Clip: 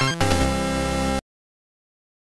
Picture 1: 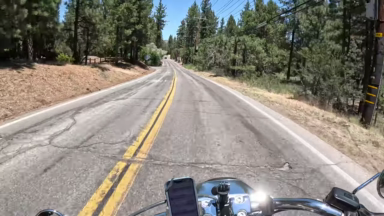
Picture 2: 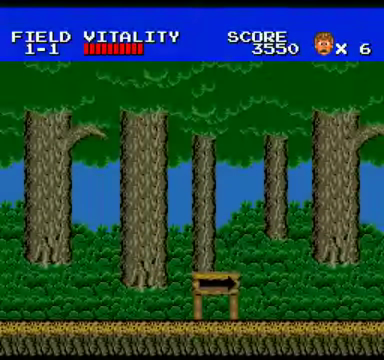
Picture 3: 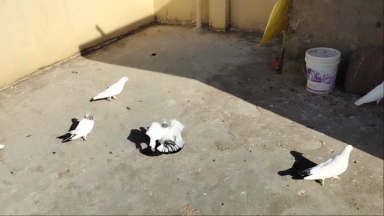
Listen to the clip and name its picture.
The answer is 2